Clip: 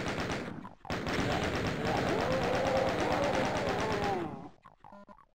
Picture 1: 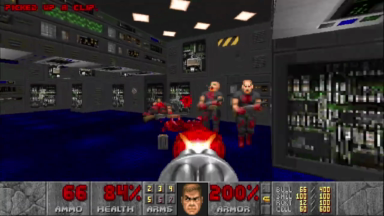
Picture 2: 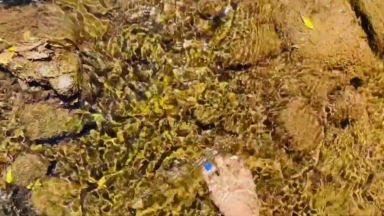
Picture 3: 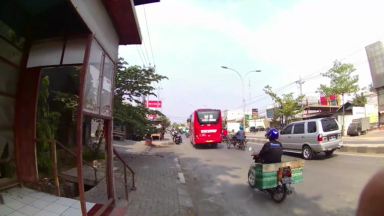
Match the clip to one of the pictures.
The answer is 1